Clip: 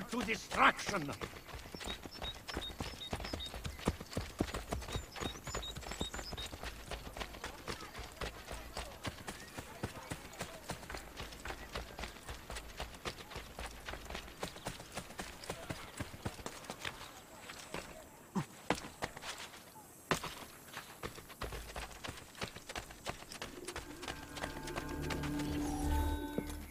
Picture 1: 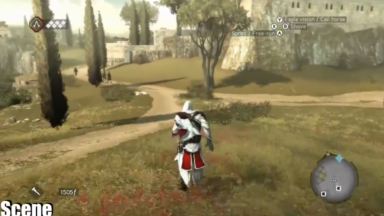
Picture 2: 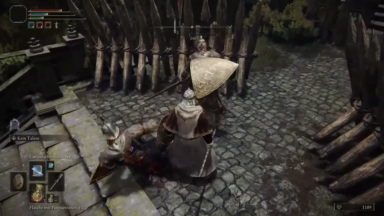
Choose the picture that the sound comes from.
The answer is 1